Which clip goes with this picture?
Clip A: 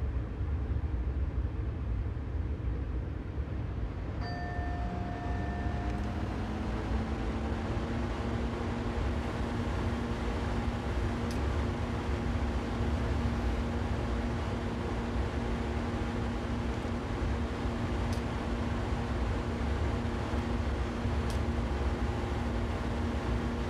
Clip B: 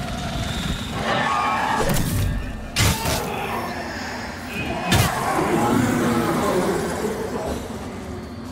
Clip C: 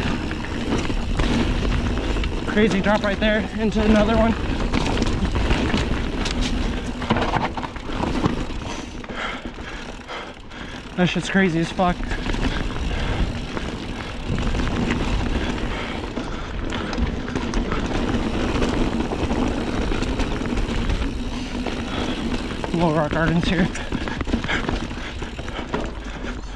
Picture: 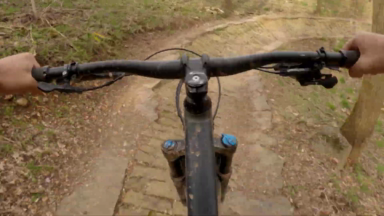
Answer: C